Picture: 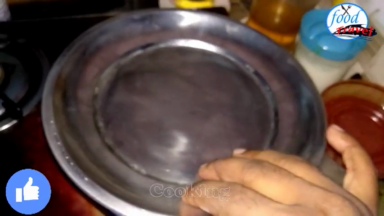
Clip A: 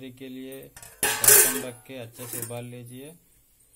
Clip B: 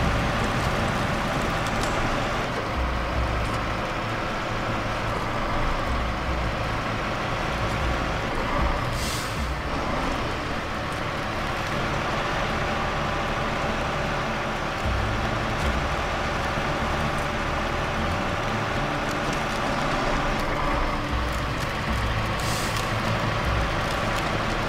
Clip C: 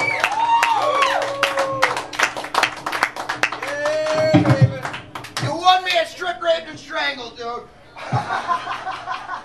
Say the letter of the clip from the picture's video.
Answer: A